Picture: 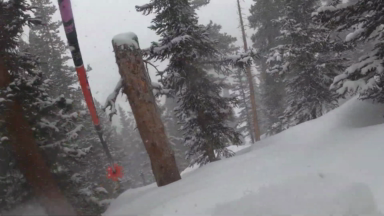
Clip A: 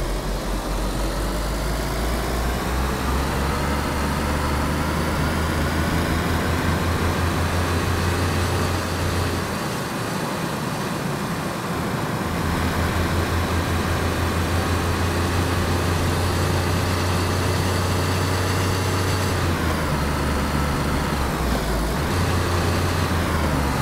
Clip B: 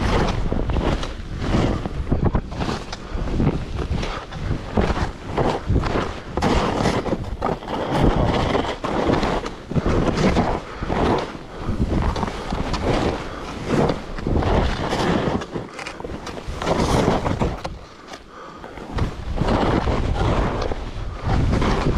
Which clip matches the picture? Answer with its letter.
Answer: B